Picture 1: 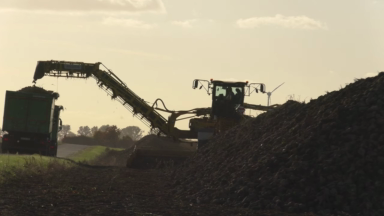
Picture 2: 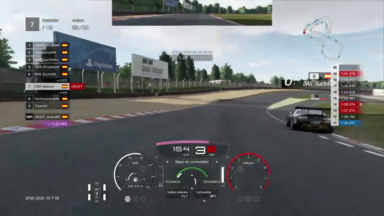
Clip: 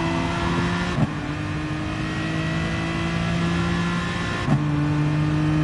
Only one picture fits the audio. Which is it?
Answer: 2